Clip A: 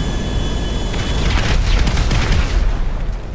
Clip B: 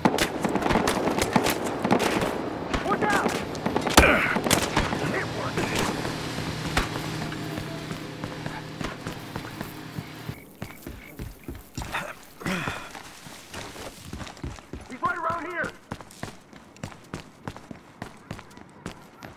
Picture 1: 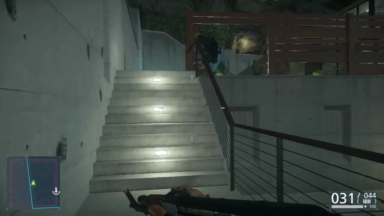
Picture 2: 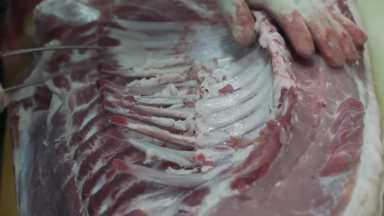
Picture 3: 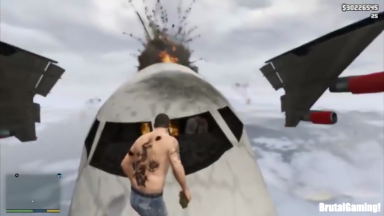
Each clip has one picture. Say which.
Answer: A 3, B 1